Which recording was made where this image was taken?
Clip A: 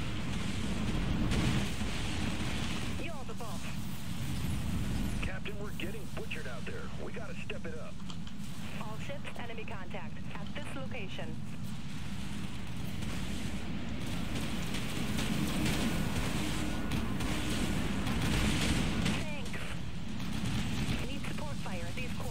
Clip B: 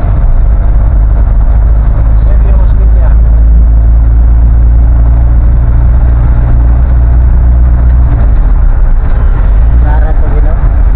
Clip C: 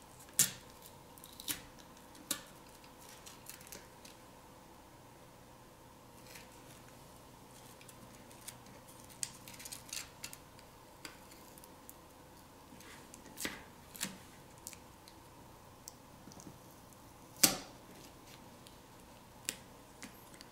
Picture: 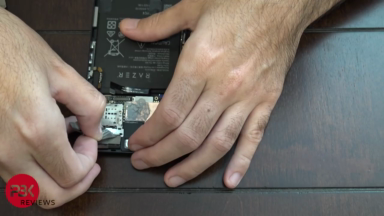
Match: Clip C